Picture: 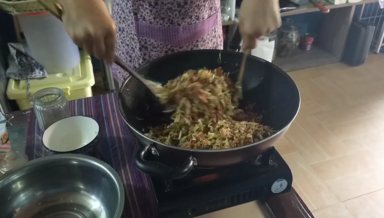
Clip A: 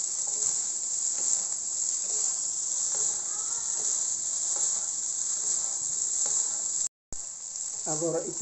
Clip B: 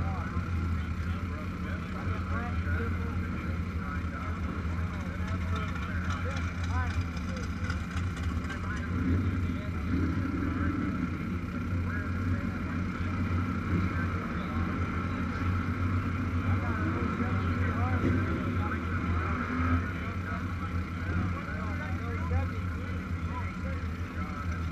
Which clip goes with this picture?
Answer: A